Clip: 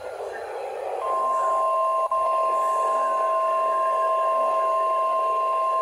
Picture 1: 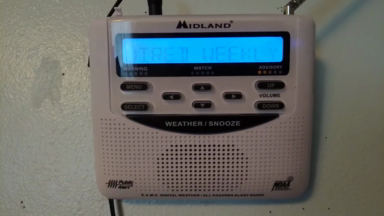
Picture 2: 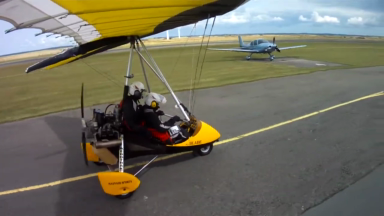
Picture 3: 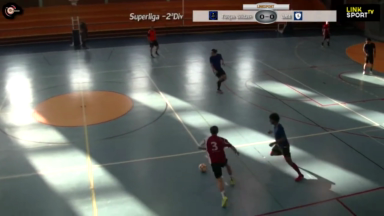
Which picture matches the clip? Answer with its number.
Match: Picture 1